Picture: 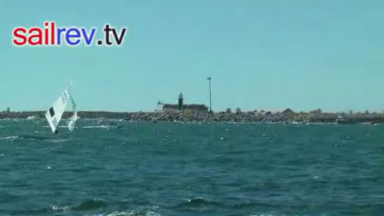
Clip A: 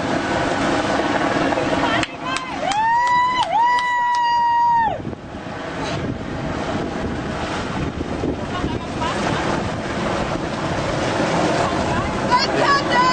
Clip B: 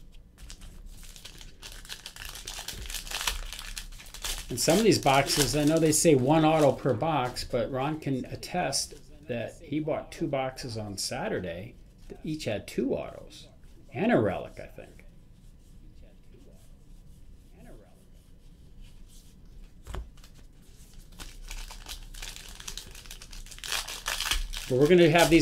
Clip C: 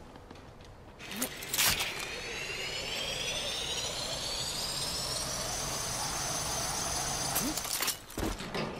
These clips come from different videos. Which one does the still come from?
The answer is A